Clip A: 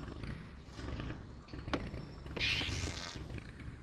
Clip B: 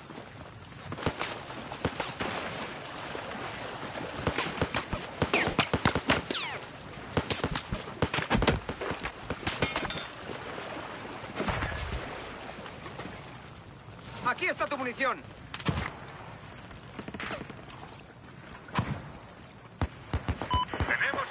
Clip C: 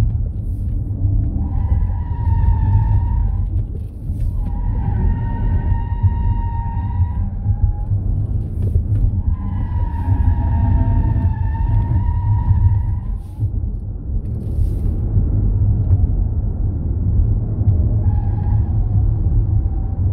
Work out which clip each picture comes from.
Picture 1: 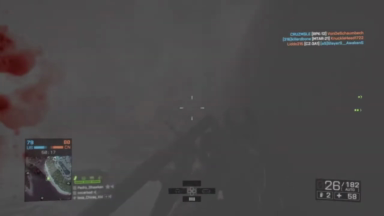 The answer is B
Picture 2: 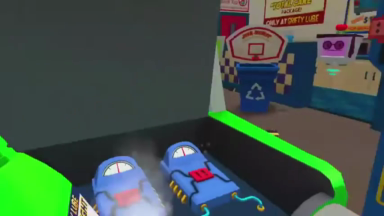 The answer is A